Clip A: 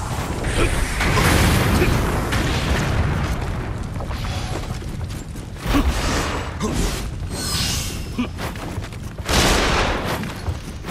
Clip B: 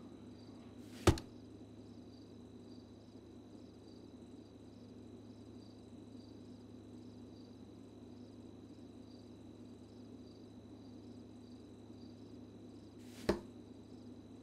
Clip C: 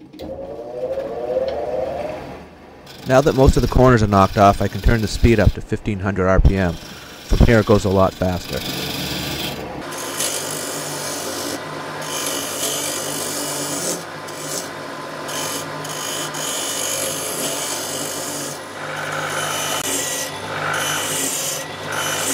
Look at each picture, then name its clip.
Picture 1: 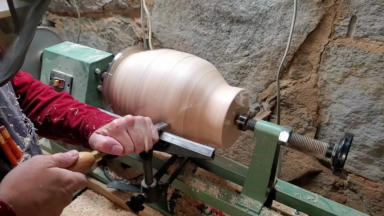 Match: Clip C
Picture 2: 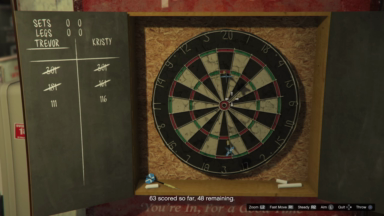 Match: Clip B